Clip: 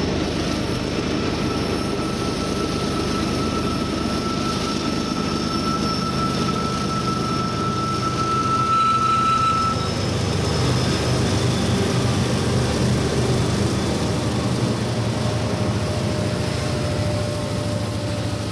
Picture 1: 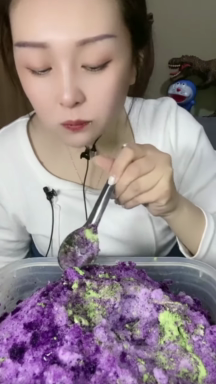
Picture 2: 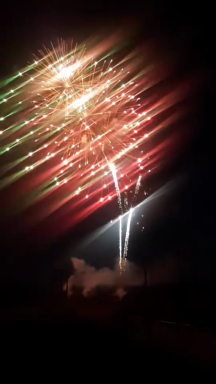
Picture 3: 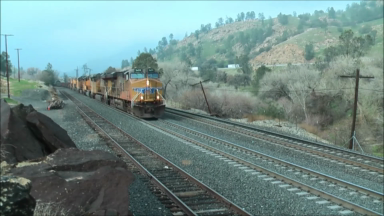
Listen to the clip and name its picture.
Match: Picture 3